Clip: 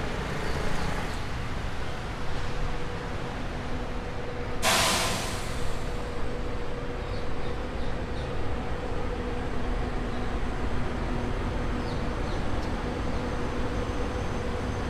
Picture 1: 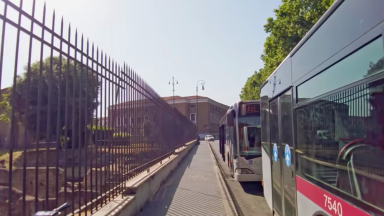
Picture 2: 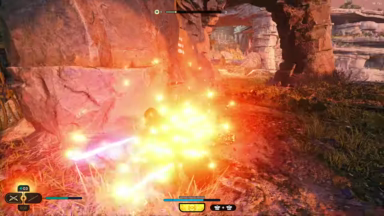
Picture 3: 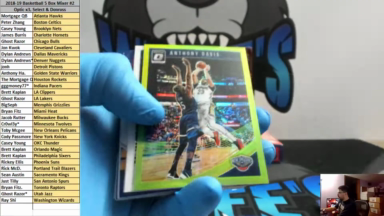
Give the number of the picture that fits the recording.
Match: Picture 1